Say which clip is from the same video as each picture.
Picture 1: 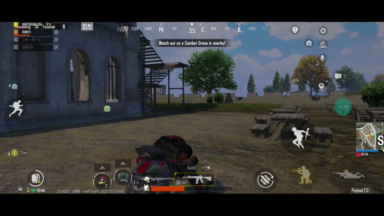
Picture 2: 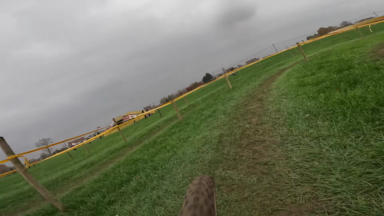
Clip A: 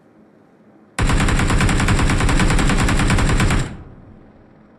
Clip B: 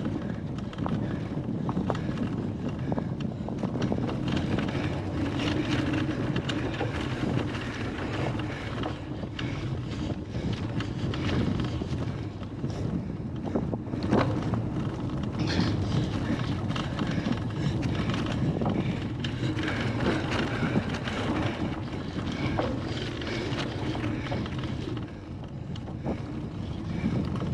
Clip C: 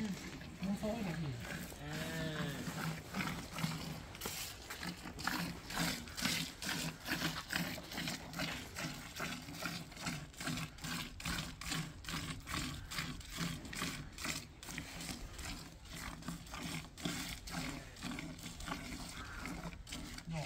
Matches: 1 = A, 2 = B